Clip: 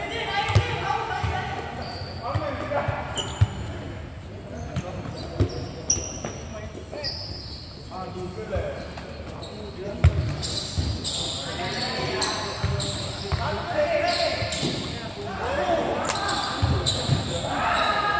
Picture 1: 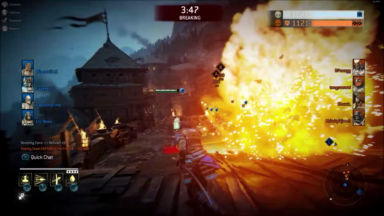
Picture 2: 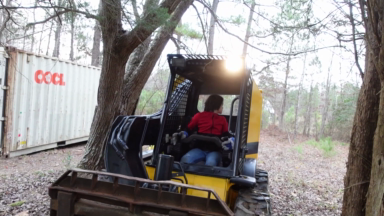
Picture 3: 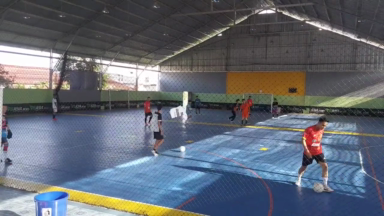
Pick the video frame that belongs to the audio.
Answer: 3